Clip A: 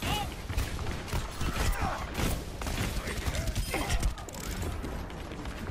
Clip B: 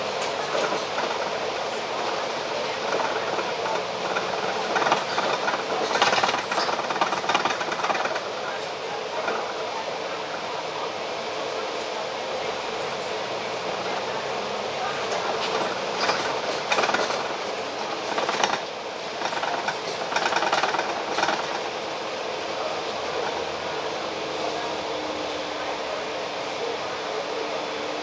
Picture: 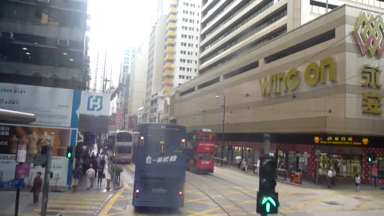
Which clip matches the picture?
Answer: B